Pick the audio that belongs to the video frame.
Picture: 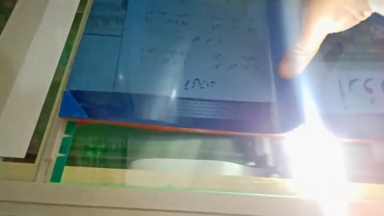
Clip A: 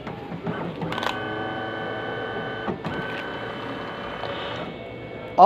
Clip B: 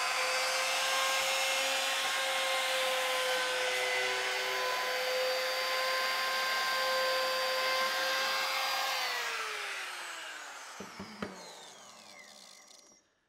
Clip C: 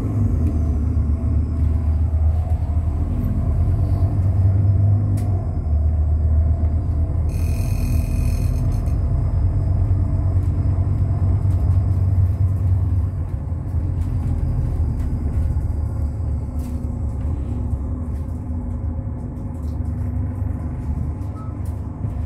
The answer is A